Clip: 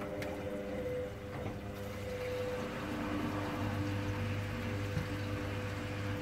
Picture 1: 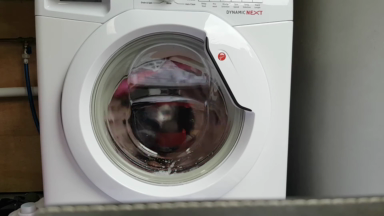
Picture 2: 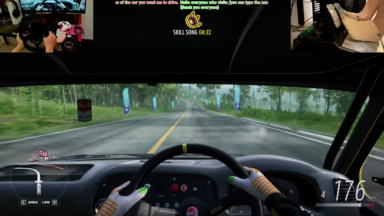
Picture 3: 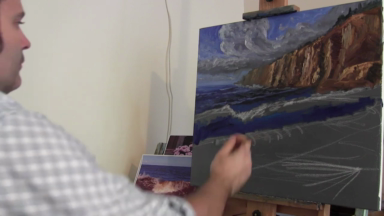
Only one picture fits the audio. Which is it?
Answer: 1